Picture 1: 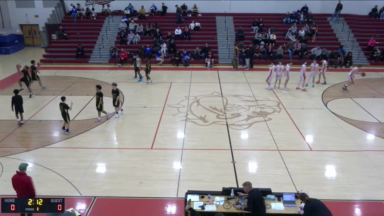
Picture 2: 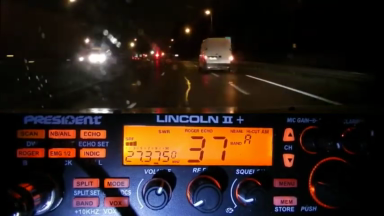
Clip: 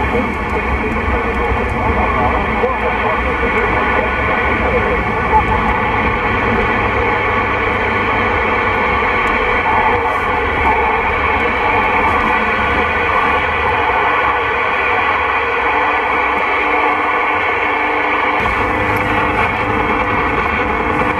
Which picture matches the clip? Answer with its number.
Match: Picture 2